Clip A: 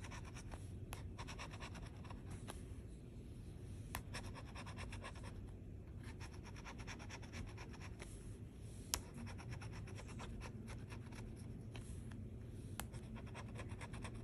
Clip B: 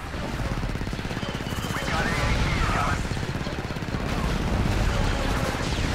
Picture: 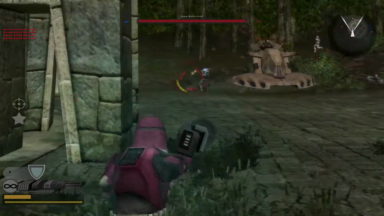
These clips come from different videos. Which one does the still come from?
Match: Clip B